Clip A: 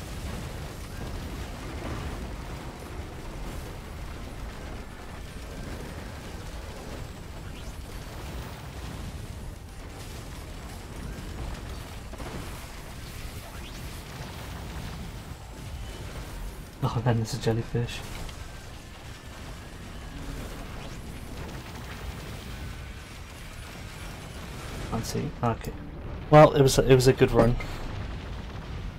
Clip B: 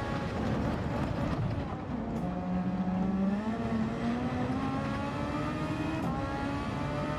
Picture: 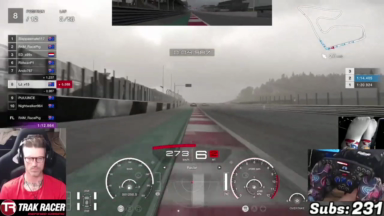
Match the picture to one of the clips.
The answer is B